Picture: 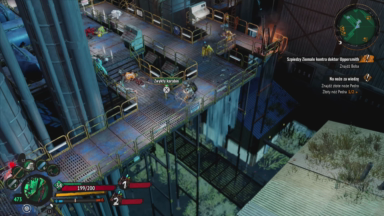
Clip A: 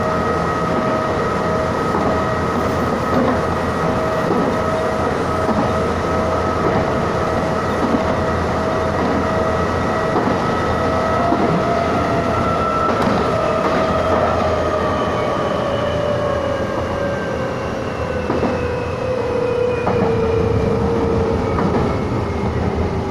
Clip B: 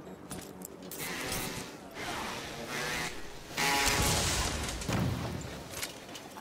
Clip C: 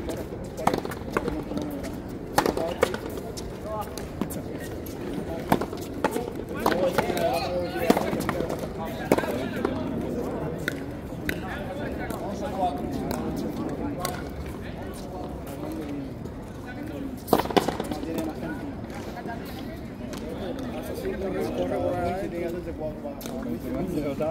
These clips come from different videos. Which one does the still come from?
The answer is B